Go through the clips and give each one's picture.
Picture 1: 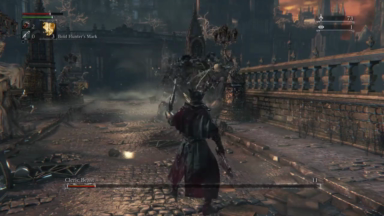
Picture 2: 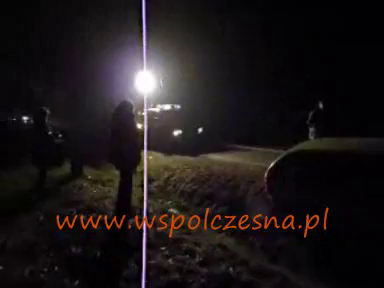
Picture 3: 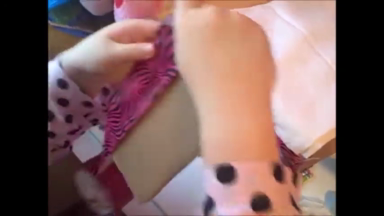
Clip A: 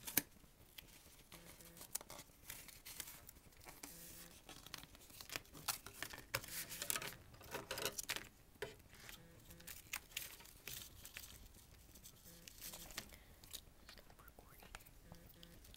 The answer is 3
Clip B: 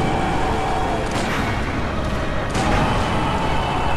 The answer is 1